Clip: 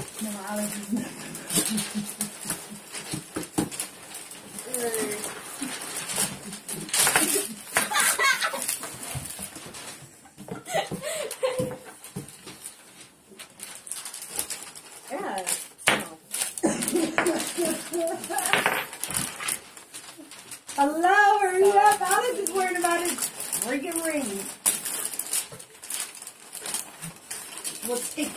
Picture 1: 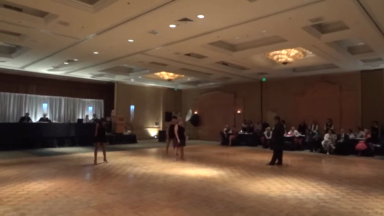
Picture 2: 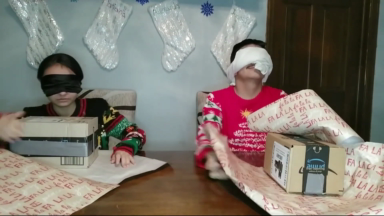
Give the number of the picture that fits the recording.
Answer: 2